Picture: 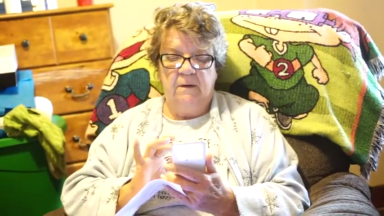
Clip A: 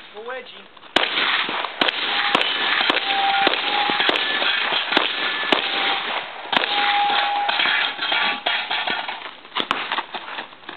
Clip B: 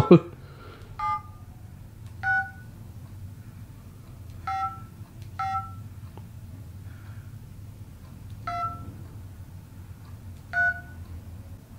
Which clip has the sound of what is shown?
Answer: B